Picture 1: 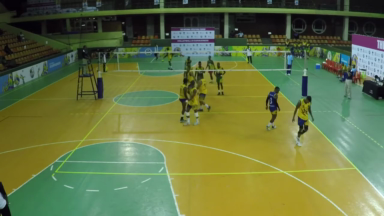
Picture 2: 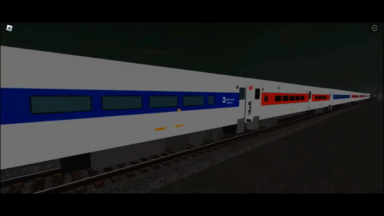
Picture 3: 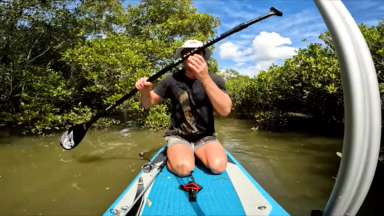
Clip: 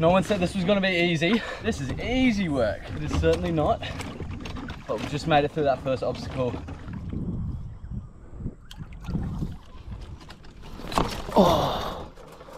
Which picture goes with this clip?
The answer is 3